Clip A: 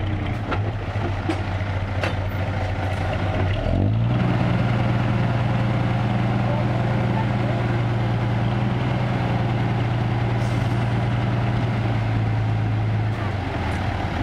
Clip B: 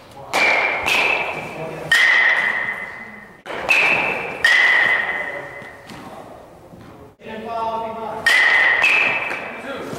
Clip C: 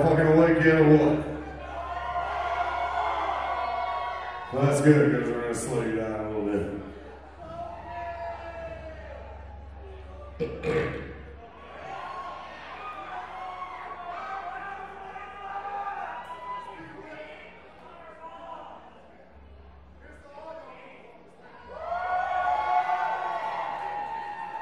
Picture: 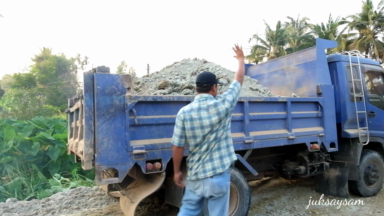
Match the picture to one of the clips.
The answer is A